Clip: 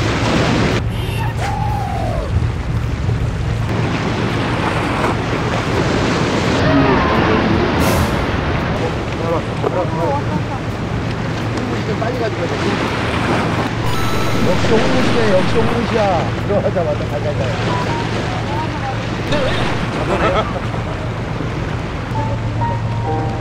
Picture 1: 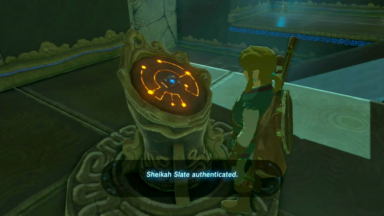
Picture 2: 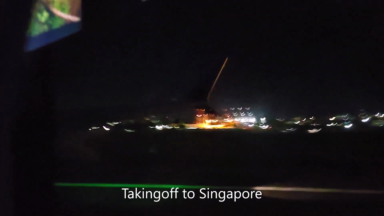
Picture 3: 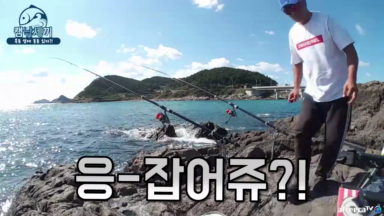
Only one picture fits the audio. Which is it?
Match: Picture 3